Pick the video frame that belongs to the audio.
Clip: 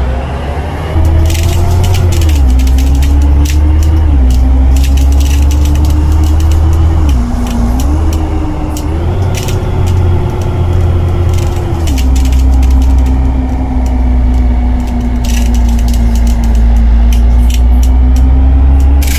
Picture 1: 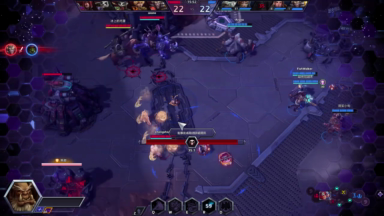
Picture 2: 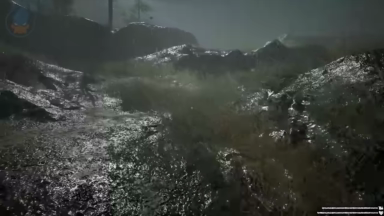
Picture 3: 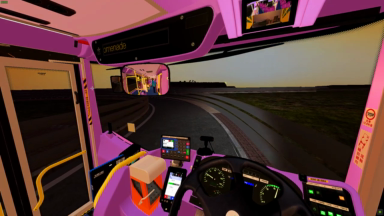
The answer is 3